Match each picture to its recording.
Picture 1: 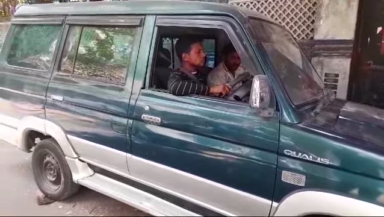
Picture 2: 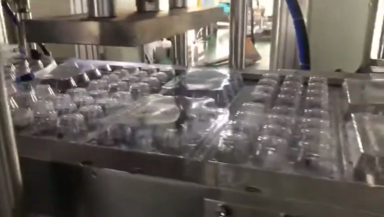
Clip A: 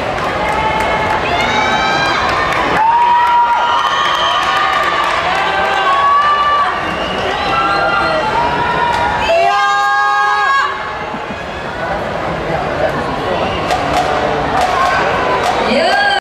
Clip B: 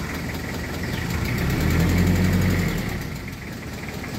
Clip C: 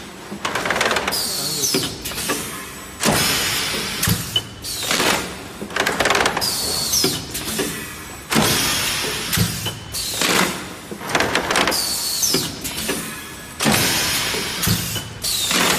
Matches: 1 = B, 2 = C